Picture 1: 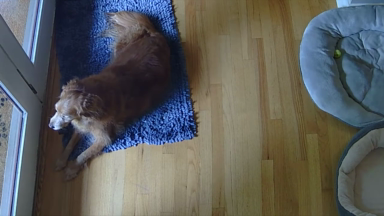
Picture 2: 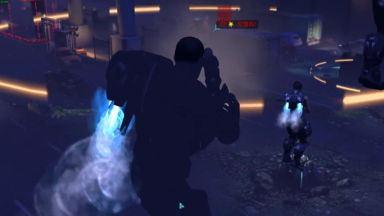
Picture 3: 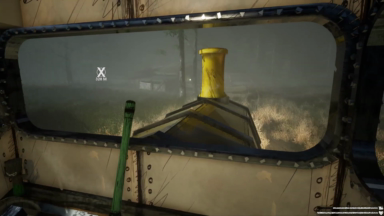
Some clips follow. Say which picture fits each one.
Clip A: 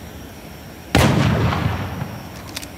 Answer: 2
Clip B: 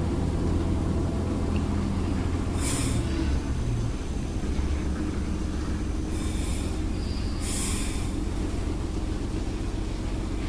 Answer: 3